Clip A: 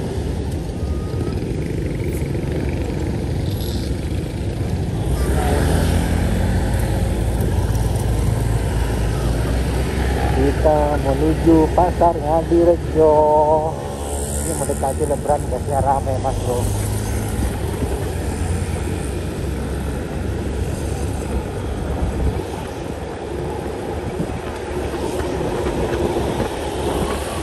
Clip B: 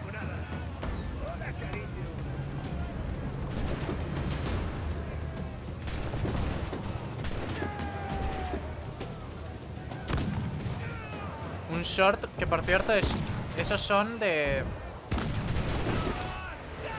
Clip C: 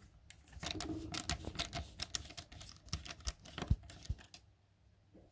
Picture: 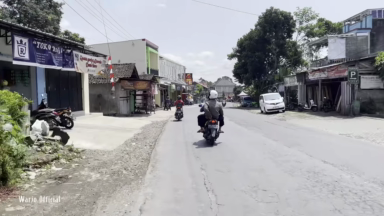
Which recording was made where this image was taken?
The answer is A